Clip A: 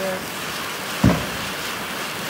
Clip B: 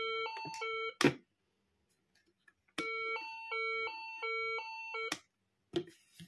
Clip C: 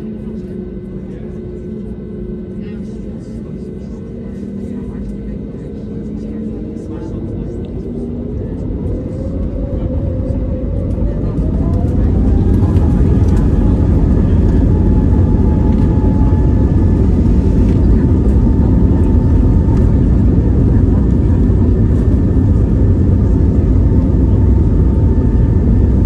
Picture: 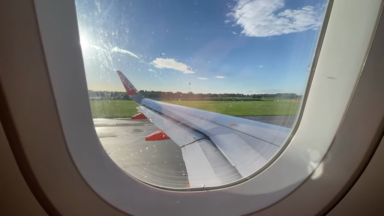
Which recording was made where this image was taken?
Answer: C